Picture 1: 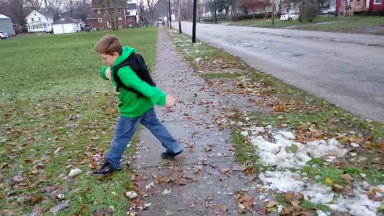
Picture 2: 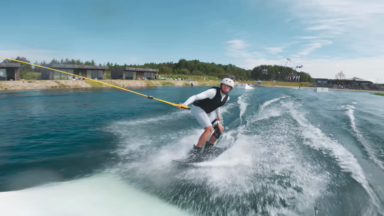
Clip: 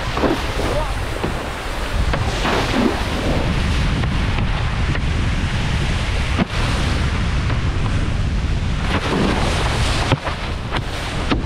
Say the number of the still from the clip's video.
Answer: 2